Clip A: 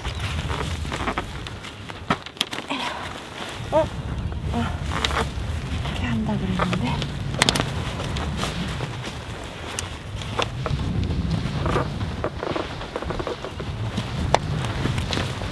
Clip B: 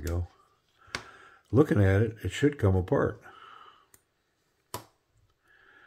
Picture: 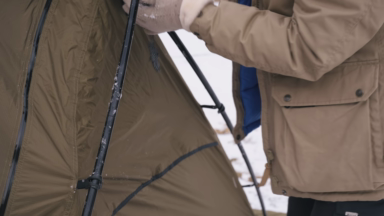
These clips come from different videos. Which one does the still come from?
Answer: A